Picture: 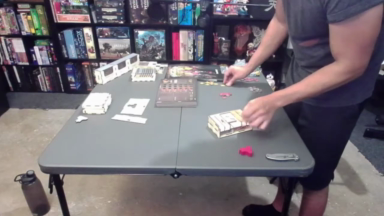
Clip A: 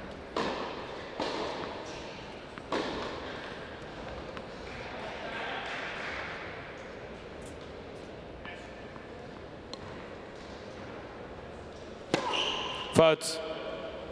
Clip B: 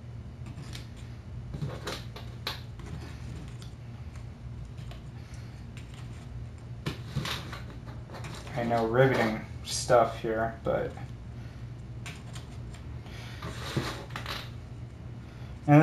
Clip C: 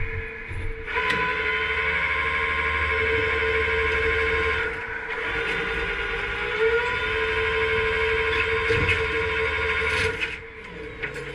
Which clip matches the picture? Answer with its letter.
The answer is B